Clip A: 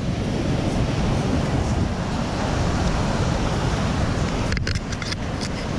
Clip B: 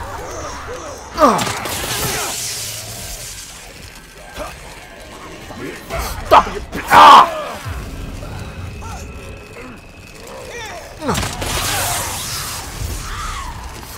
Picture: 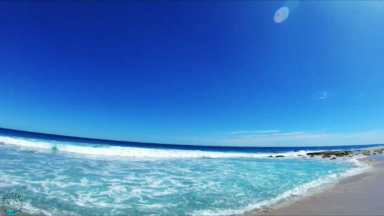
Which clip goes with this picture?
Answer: A